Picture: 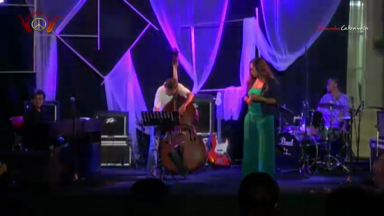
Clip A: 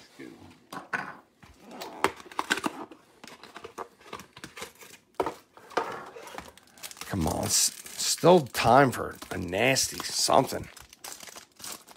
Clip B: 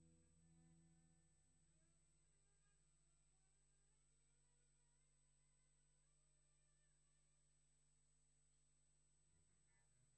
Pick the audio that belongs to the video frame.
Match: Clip B